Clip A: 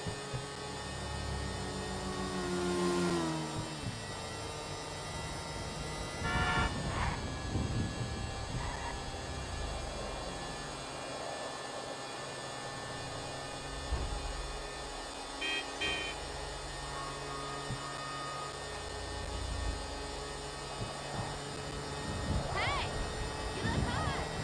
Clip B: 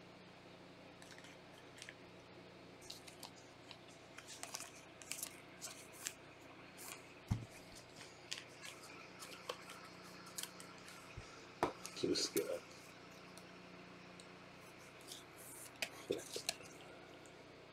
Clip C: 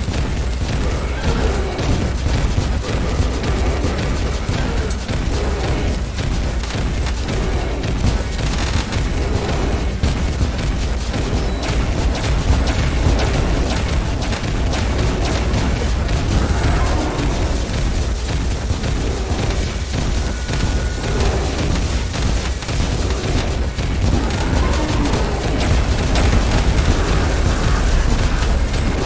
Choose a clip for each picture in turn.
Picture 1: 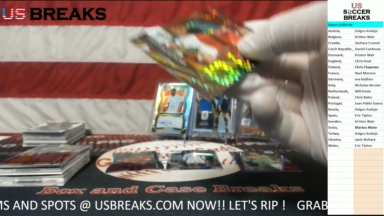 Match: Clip B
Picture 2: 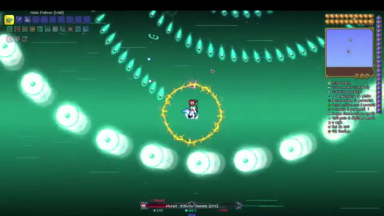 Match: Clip C